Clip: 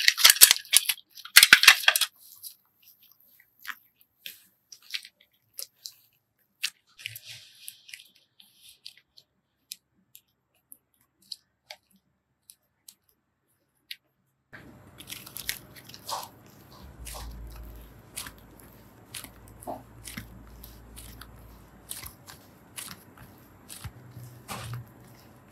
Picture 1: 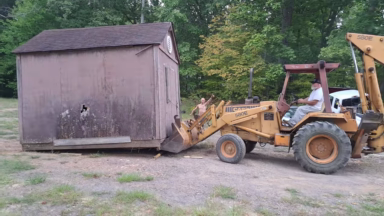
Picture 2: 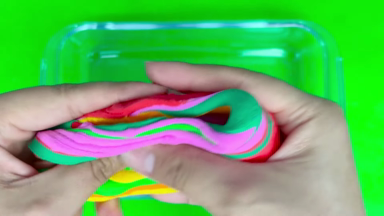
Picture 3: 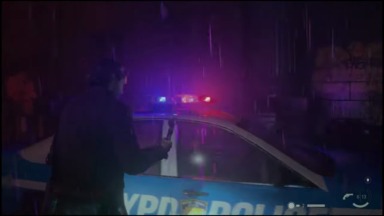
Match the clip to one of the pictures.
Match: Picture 2